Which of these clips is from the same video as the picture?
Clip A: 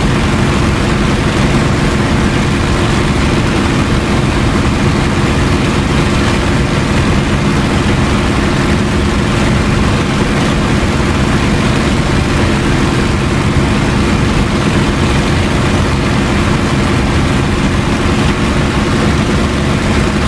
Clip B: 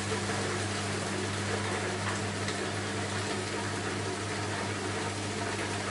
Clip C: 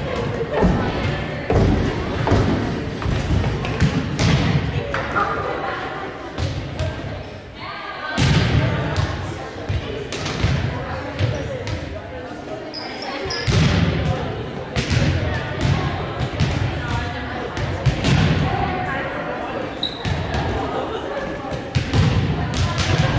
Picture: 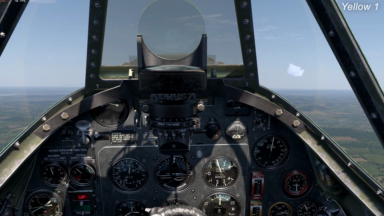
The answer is A